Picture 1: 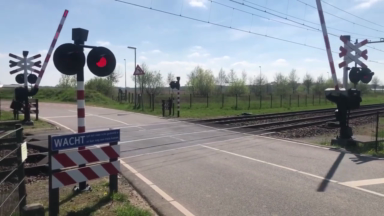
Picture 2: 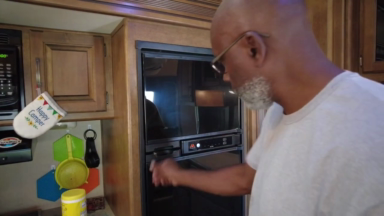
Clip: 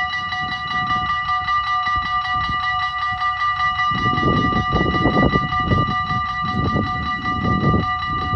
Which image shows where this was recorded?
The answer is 1